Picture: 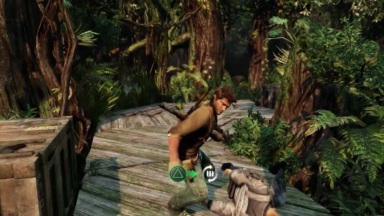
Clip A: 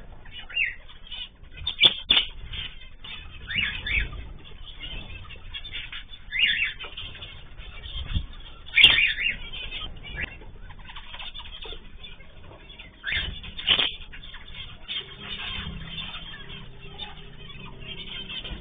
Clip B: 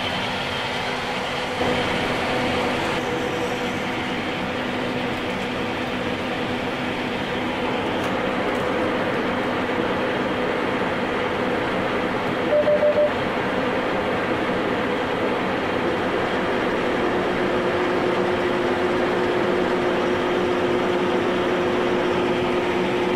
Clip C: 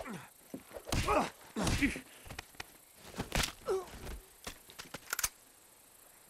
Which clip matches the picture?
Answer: C